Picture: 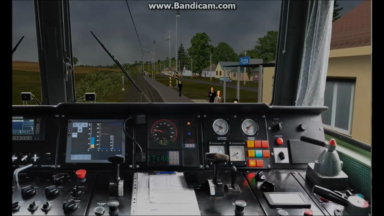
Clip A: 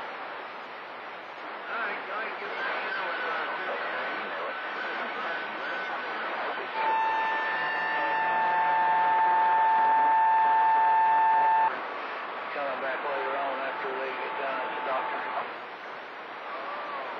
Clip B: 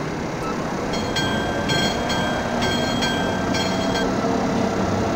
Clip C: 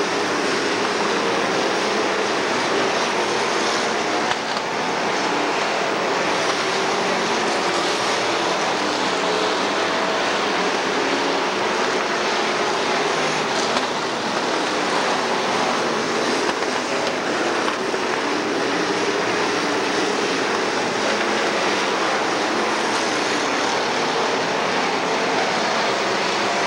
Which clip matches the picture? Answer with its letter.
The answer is B